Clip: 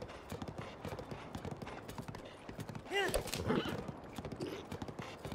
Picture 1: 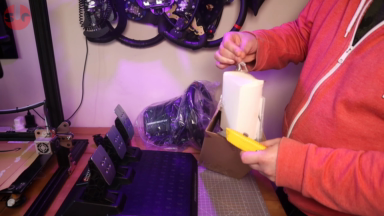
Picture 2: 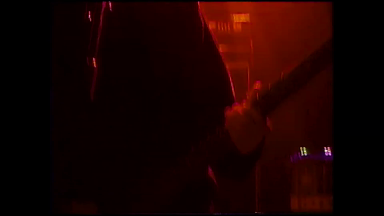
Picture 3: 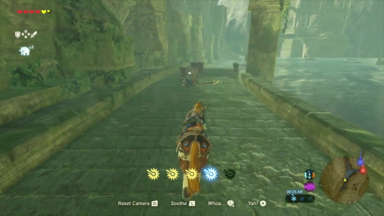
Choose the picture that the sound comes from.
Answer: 3